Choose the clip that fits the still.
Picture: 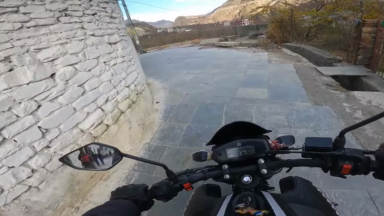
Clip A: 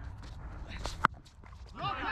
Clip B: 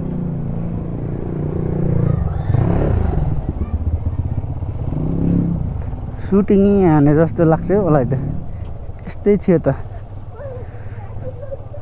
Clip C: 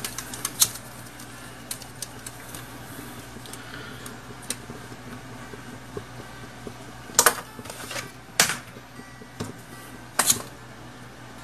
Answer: B